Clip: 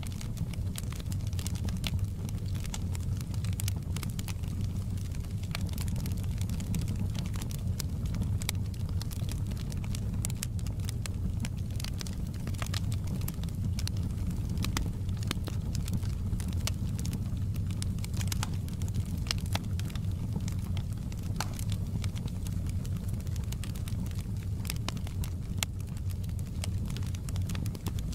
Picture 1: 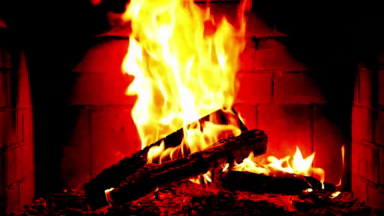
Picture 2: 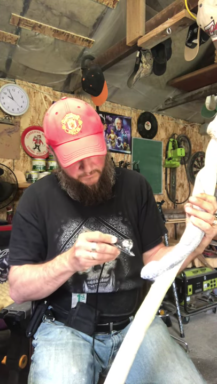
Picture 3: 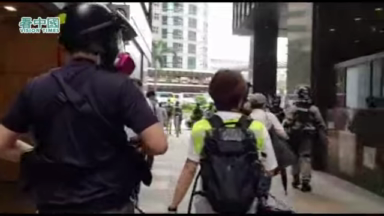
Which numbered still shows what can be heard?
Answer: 1